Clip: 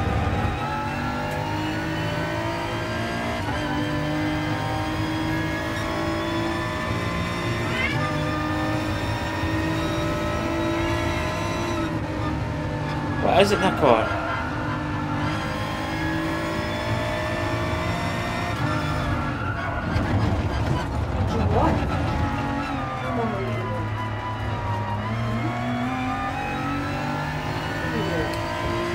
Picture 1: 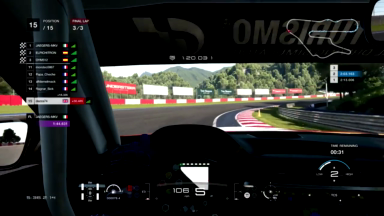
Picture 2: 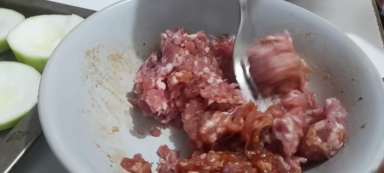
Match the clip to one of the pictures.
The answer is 1